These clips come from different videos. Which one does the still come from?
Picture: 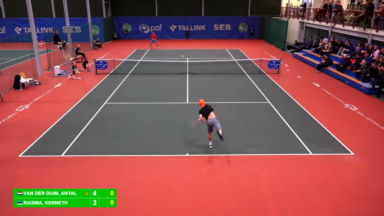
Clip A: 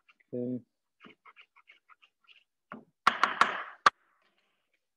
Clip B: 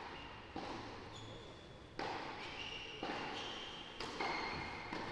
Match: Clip B